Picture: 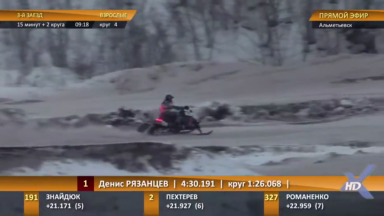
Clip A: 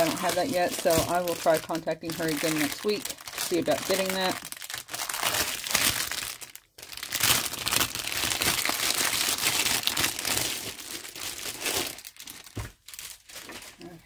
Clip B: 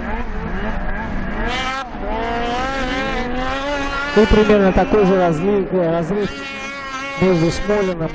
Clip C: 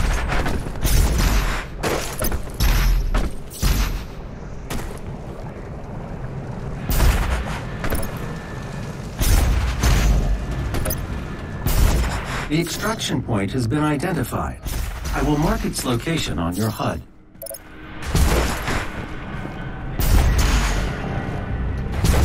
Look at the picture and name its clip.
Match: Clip B